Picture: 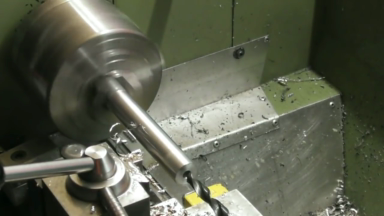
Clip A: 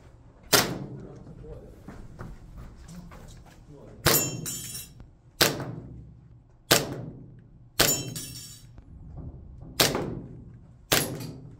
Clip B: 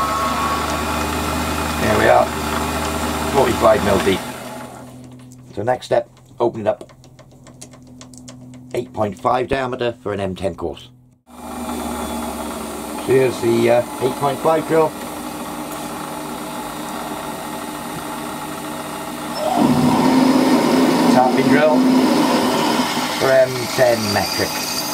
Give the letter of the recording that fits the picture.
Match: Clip B